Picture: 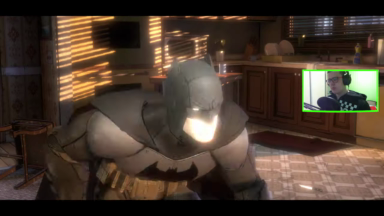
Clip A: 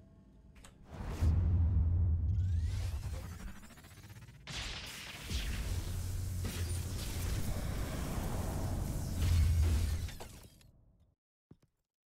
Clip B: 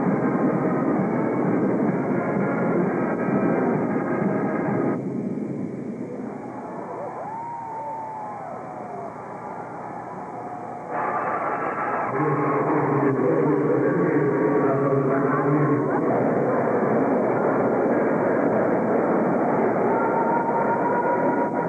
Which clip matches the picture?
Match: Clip A